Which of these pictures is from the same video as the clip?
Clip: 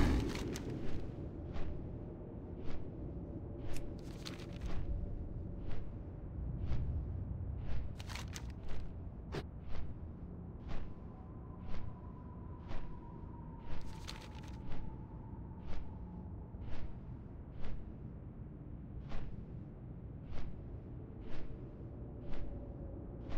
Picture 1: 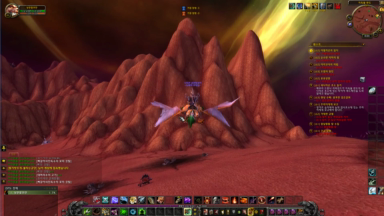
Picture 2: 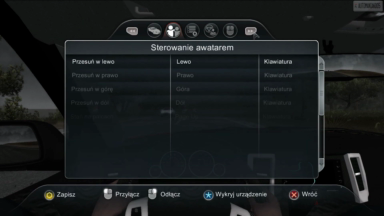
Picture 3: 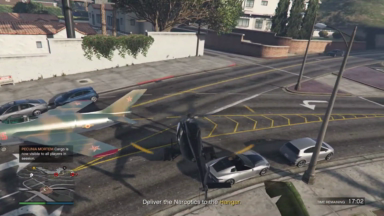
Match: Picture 1